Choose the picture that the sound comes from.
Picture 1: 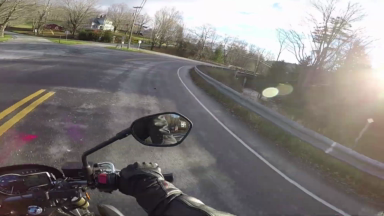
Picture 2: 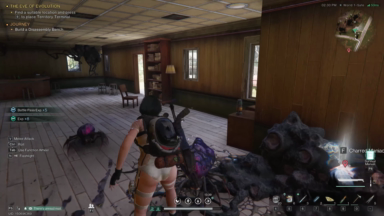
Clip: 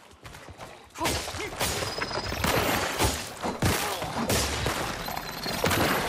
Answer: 2